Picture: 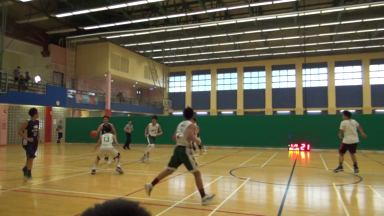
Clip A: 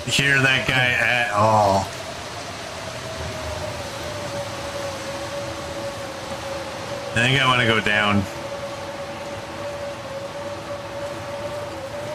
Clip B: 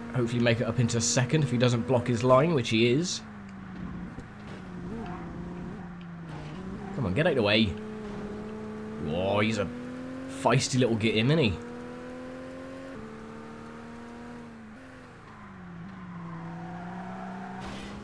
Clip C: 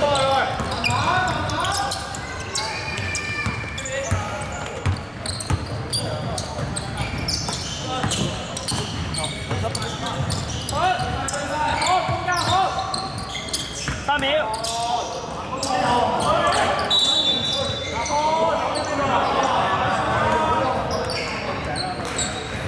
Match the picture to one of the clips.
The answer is C